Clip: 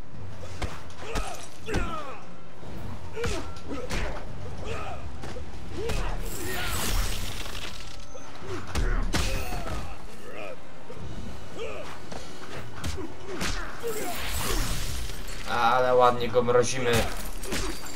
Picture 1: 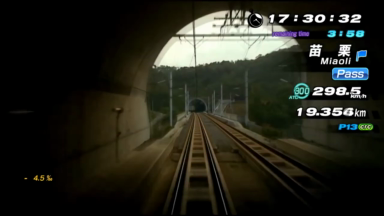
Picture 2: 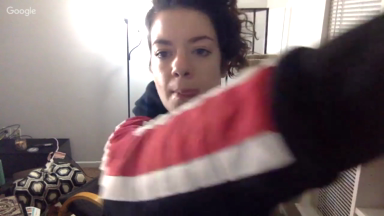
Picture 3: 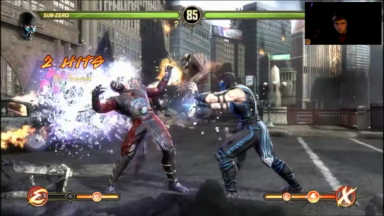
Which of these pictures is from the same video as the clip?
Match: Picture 3